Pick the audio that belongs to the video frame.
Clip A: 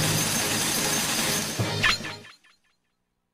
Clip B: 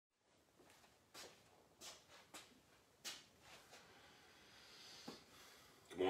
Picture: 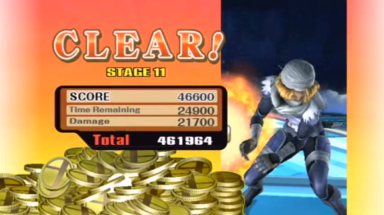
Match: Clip A